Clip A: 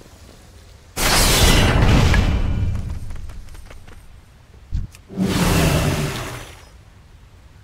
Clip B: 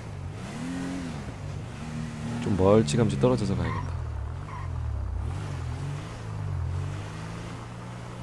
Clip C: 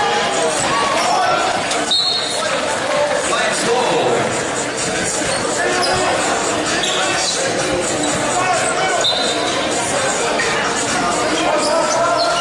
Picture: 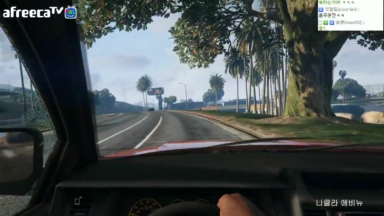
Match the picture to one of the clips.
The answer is B